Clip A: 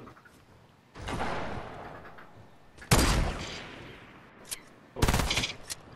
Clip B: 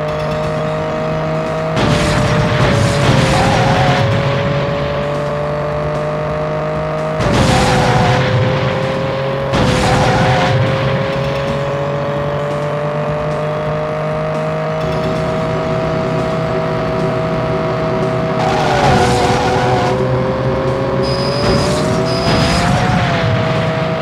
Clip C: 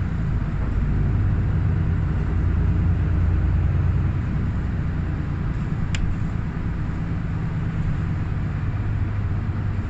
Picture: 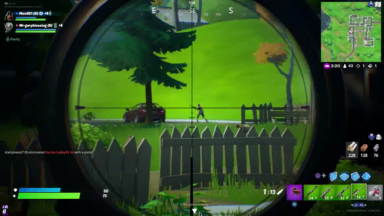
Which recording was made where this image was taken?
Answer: A